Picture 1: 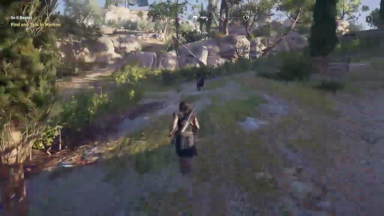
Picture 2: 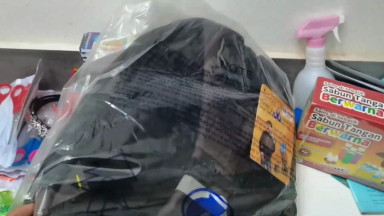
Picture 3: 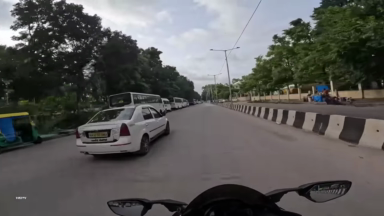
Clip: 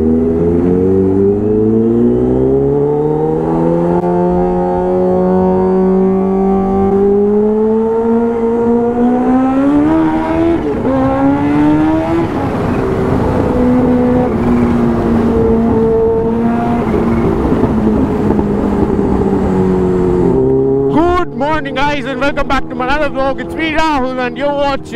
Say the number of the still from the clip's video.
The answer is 3